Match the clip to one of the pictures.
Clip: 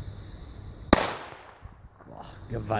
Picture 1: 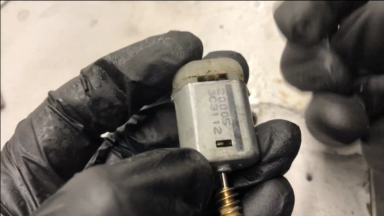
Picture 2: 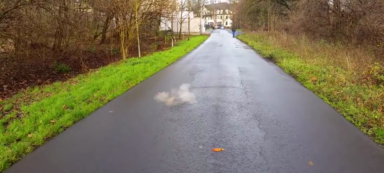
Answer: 2